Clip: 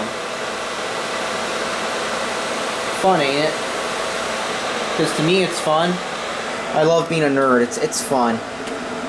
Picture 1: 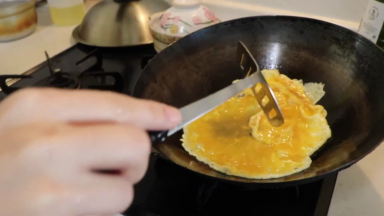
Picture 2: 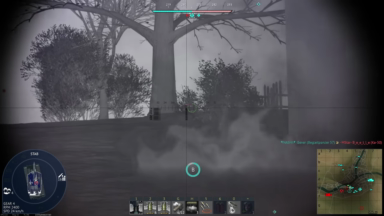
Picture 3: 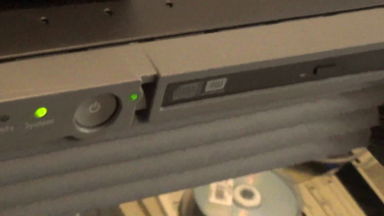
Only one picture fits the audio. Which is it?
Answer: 3